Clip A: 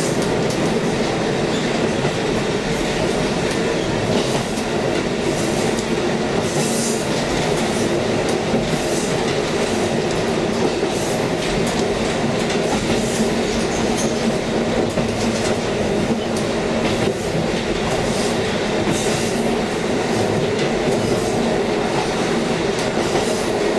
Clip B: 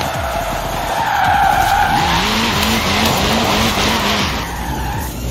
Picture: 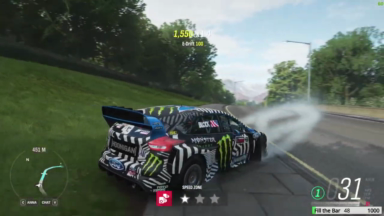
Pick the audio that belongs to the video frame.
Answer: B